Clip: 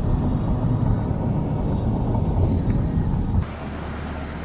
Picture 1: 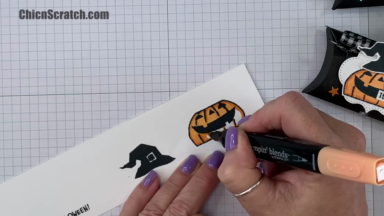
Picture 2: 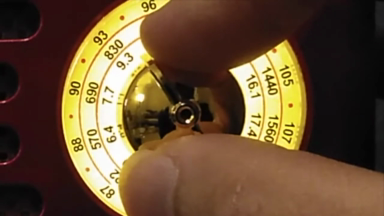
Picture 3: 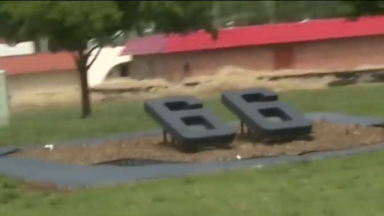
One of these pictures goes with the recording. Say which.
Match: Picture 3